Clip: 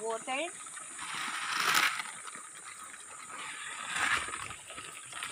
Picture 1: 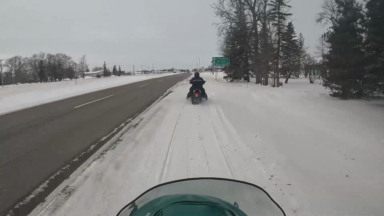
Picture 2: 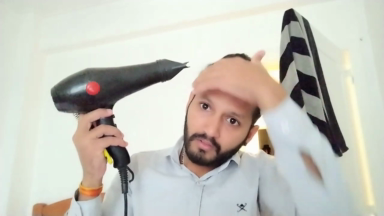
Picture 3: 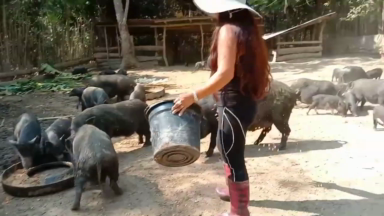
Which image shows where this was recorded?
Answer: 3